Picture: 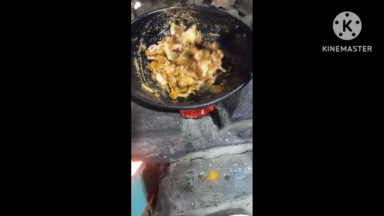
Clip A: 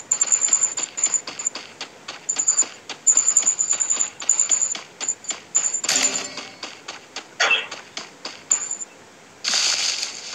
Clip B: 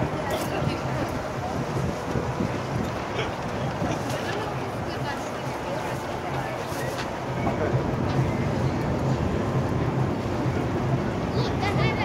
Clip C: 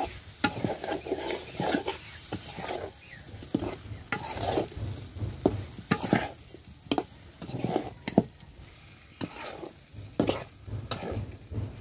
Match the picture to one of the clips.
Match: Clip C